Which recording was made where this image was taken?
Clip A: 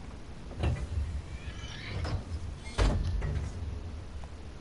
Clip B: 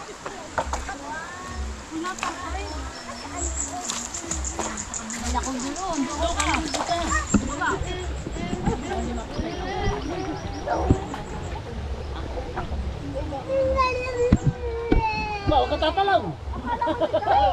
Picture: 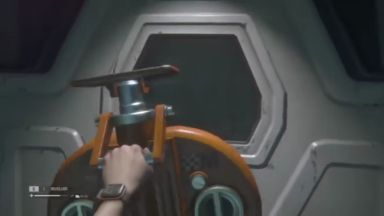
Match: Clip A